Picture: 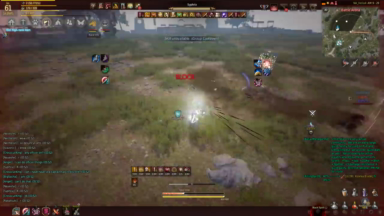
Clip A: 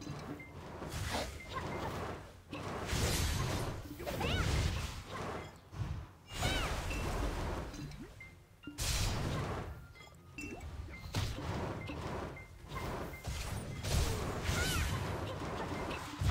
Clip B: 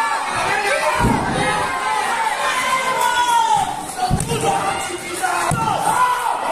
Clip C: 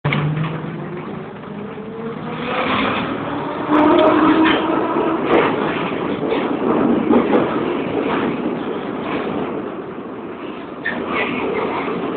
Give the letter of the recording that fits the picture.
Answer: A